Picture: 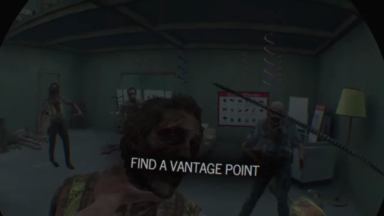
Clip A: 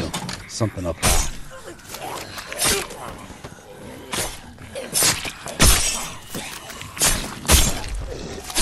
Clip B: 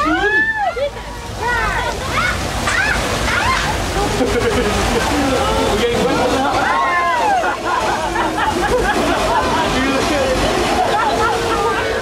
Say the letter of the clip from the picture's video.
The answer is A